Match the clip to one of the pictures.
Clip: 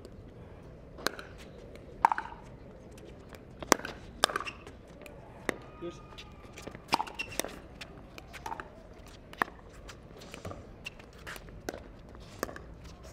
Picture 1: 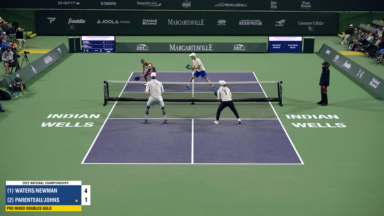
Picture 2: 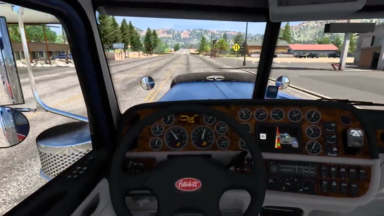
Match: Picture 1